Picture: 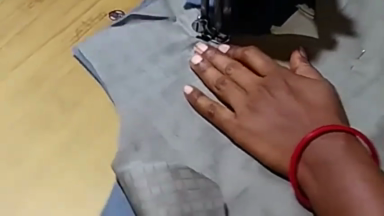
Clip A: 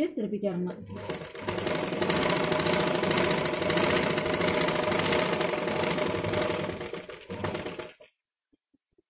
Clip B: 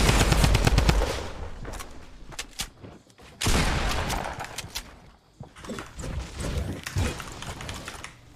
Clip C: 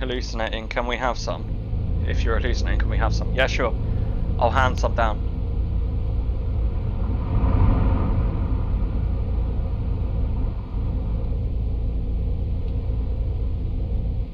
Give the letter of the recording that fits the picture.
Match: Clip A